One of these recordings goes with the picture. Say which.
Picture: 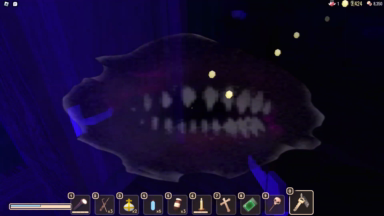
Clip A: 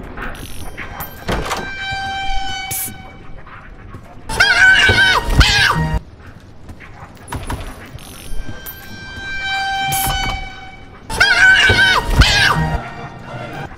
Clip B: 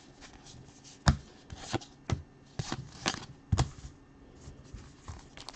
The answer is A